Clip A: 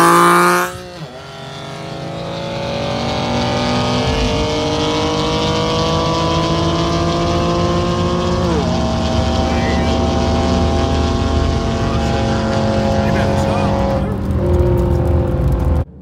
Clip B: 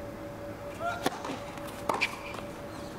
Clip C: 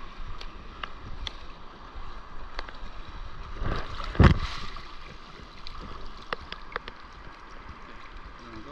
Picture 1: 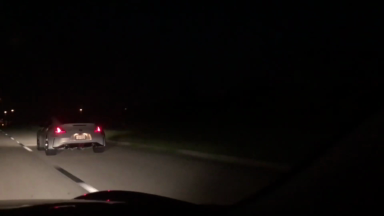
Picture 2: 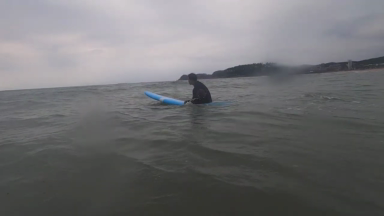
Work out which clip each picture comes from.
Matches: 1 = A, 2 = C